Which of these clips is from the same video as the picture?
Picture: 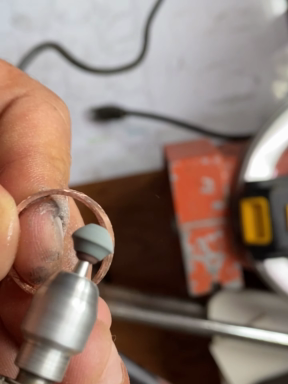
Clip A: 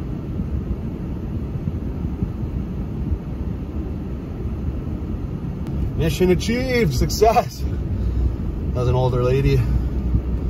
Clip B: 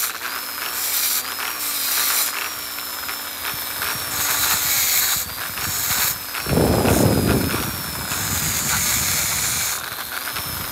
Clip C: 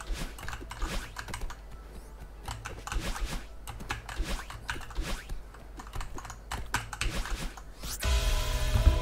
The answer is B